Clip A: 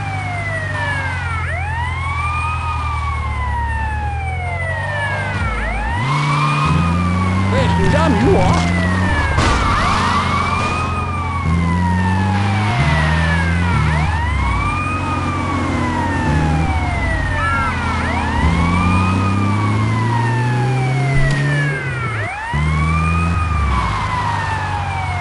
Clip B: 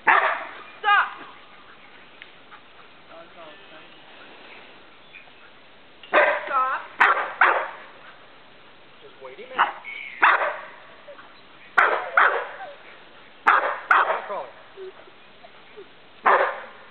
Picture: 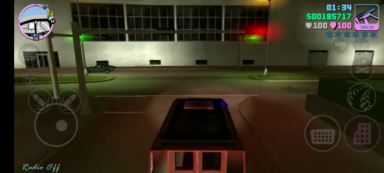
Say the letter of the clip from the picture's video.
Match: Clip A